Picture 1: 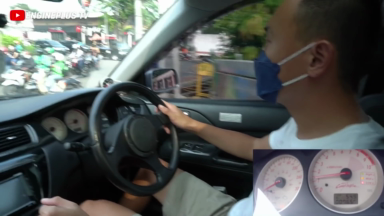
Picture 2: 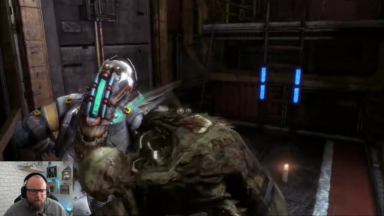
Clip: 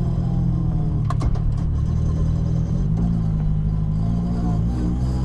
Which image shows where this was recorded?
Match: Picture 1